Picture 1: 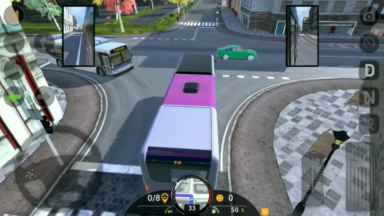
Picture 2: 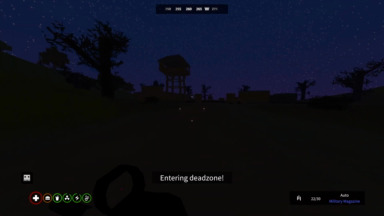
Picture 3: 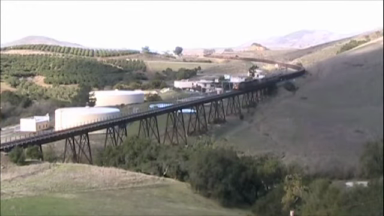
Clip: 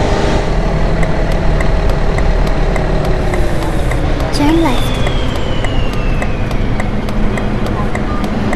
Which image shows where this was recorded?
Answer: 1